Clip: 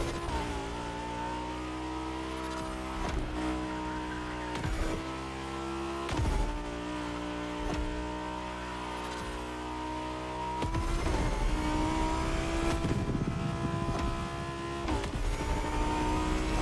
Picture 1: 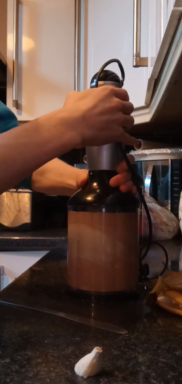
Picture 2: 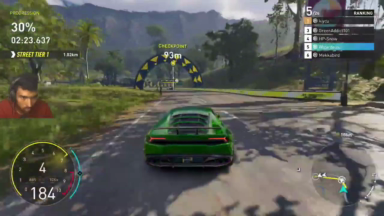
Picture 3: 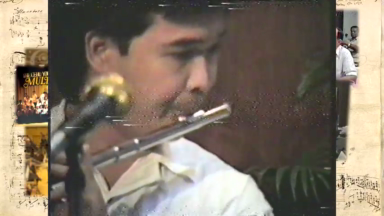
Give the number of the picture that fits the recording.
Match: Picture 2